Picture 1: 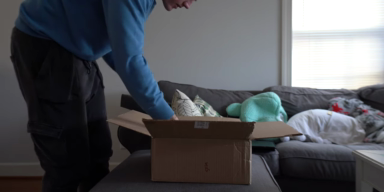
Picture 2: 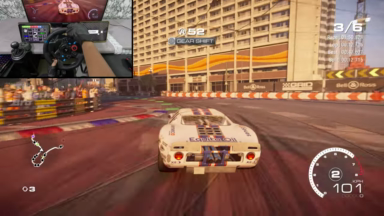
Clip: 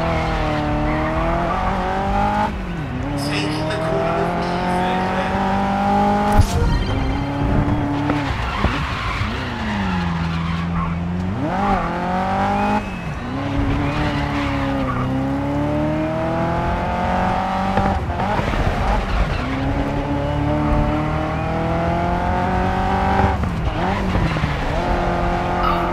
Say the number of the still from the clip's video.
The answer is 2